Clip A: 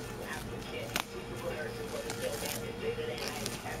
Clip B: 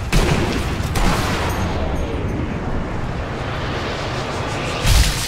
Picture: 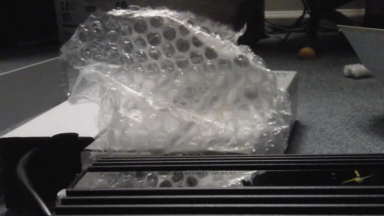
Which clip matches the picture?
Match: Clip A